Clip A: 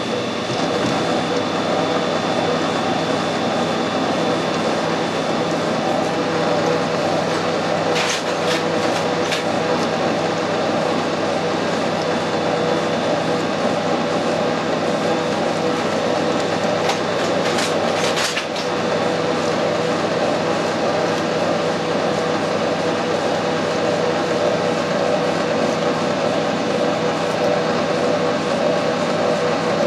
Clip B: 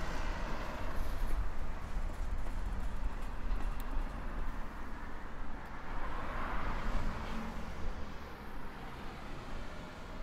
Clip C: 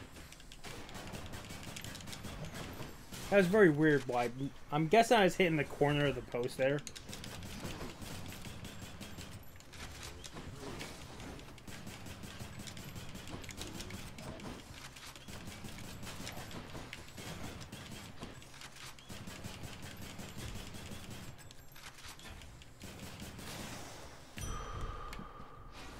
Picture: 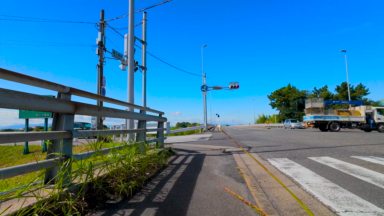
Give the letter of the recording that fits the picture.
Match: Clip B